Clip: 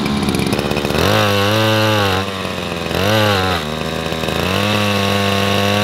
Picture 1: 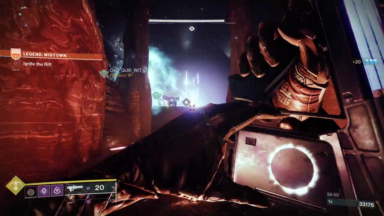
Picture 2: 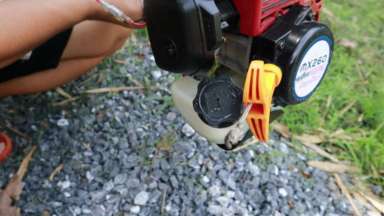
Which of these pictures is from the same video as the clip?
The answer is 2